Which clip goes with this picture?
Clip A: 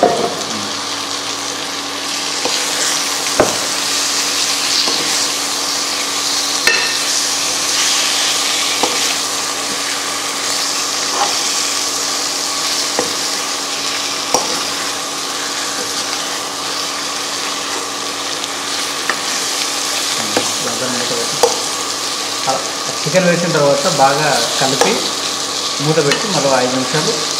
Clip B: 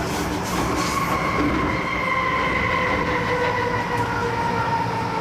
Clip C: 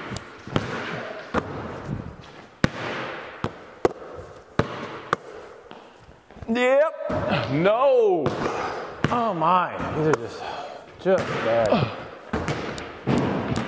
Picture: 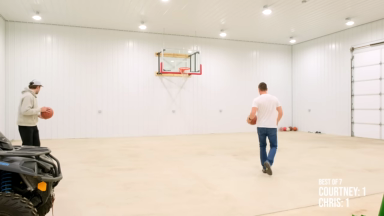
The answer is C